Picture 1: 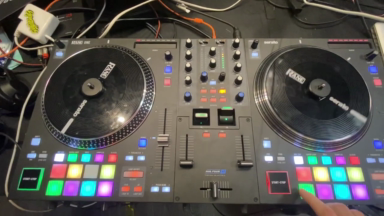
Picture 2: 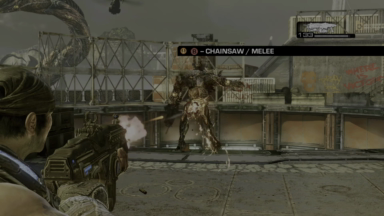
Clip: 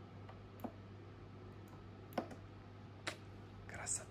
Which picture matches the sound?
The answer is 1